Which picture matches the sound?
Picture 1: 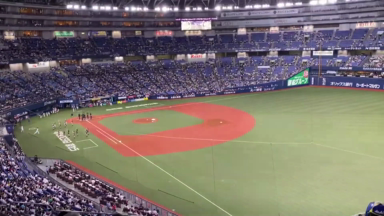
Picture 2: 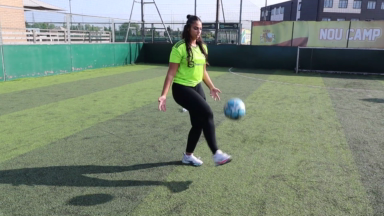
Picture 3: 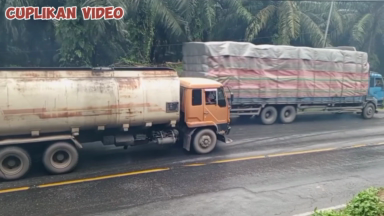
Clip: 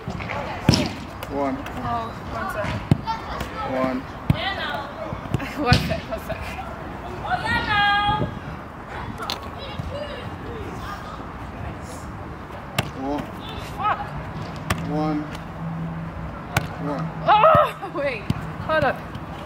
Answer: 2